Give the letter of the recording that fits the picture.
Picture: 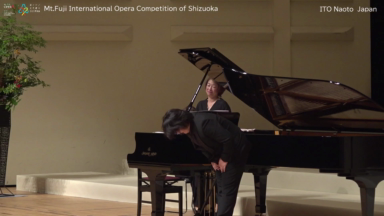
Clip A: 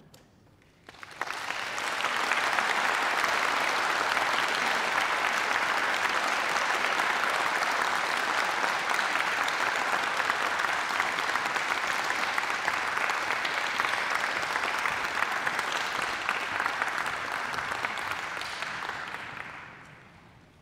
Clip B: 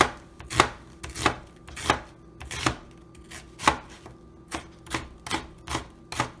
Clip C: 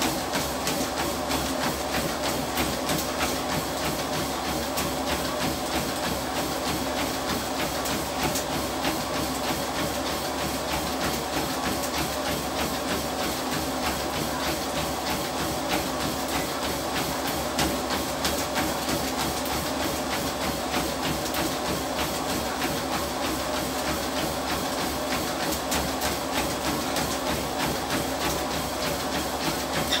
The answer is A